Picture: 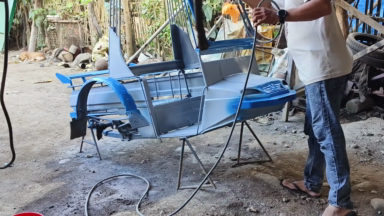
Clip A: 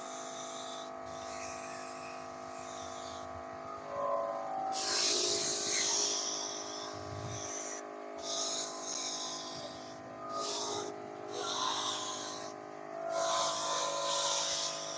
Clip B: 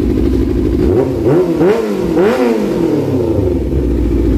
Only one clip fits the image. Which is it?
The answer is A